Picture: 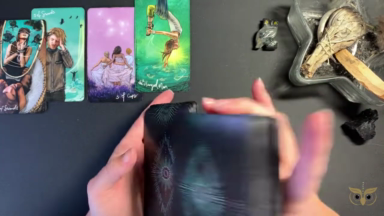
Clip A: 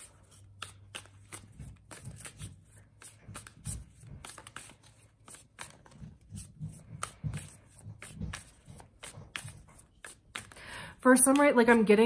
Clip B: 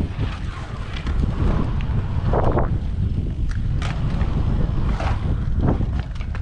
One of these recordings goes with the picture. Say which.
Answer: A